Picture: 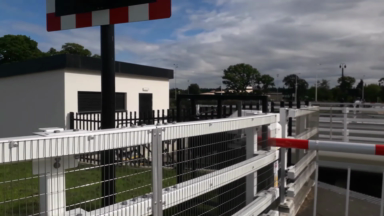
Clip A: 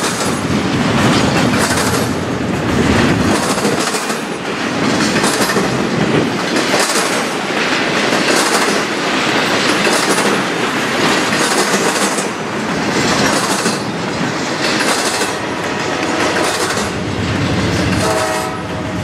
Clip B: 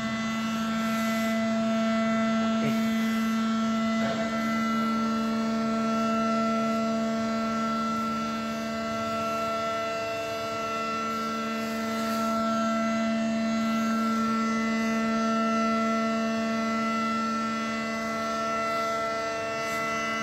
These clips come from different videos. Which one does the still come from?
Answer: B